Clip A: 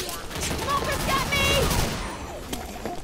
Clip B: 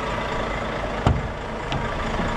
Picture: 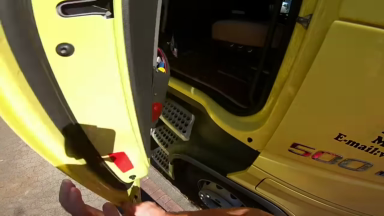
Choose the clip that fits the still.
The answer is B